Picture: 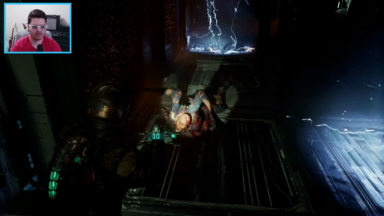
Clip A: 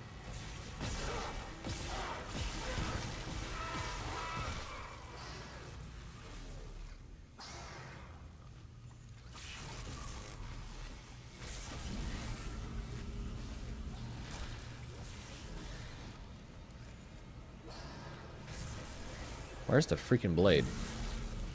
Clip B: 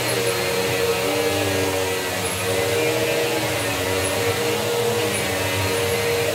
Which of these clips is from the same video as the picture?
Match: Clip A